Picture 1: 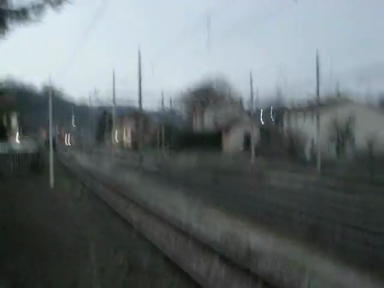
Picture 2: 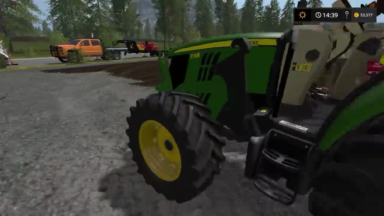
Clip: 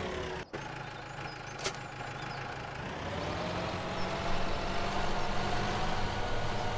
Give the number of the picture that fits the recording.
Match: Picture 2